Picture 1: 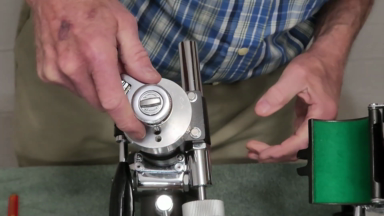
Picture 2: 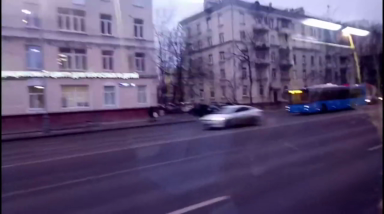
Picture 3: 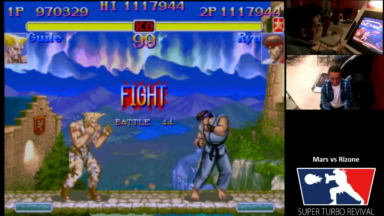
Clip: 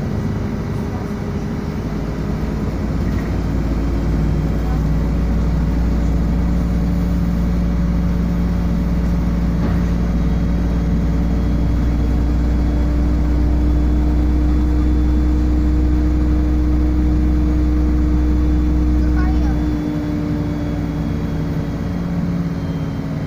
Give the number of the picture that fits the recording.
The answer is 2